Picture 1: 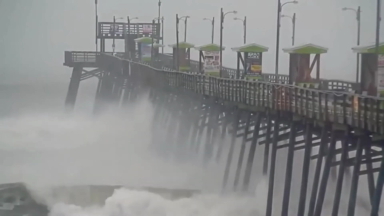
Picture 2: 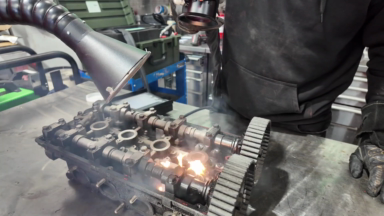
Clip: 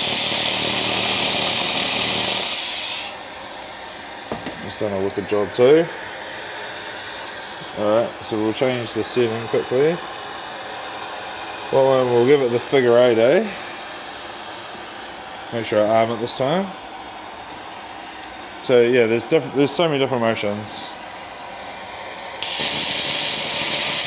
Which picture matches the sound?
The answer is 2